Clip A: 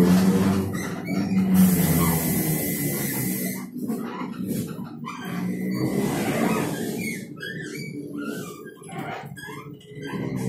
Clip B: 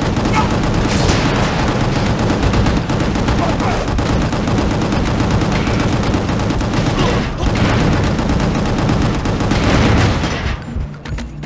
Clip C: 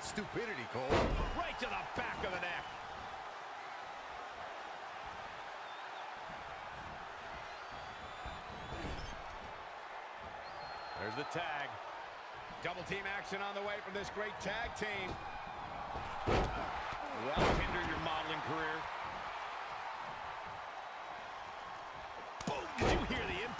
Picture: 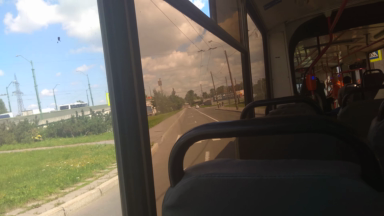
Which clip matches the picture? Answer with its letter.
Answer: A